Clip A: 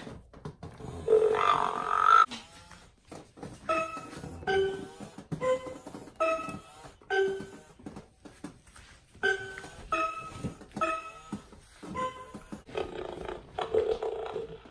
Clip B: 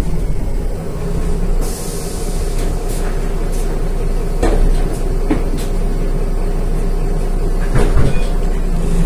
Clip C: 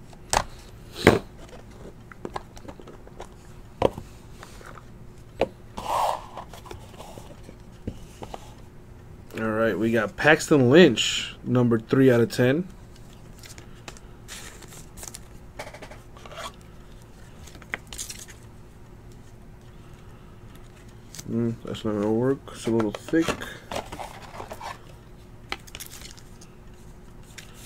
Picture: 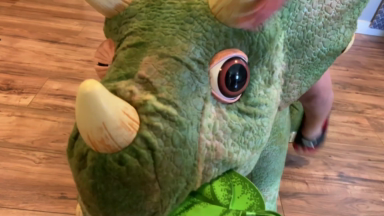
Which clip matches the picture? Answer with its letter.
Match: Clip A